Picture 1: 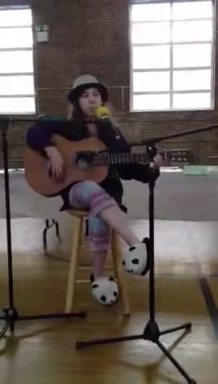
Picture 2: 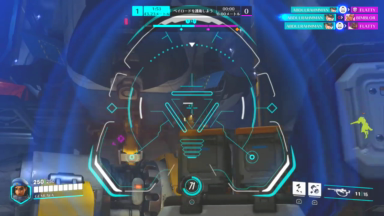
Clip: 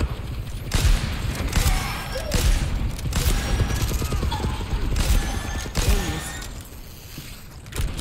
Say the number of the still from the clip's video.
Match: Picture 2